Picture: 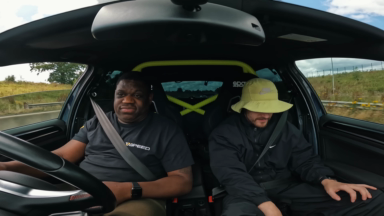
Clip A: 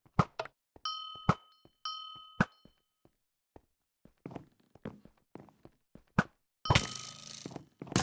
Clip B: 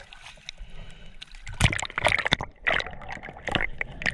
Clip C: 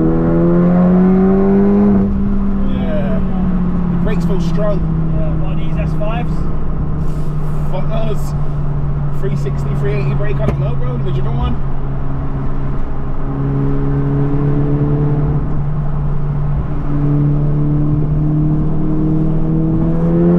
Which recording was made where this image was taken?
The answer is C